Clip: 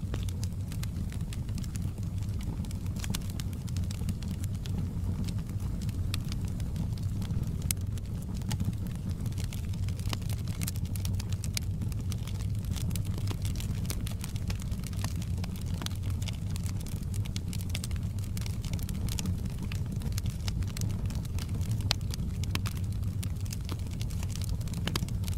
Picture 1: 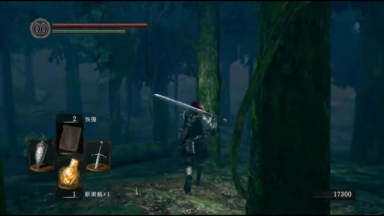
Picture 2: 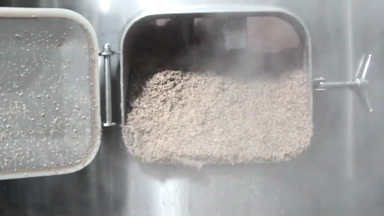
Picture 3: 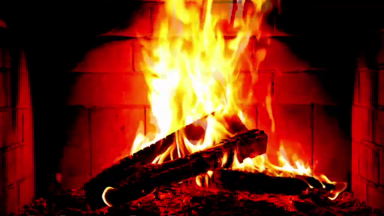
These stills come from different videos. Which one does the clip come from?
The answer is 3